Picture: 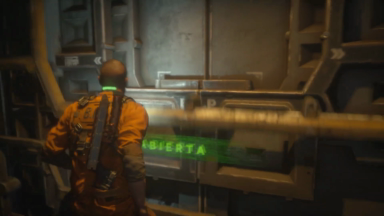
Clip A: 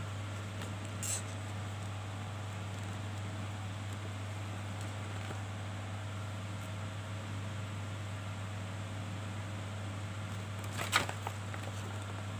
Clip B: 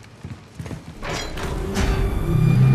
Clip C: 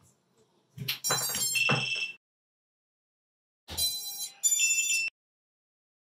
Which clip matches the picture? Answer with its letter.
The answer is B